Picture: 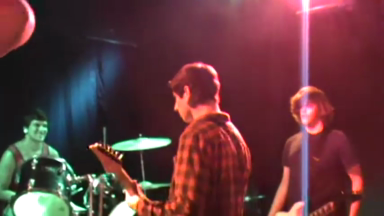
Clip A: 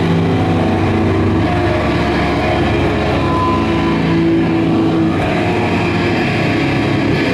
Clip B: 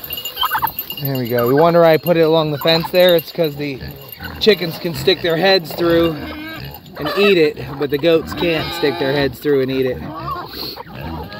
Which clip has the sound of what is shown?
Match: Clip A